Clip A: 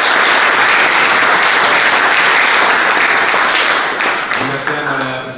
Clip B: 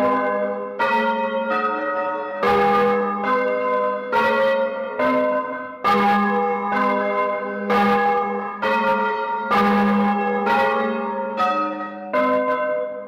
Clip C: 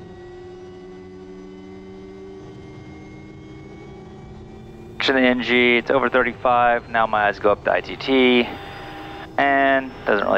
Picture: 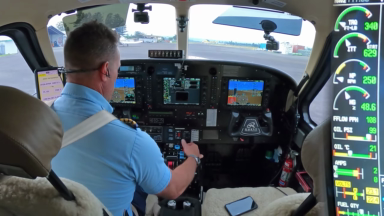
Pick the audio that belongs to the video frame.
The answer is C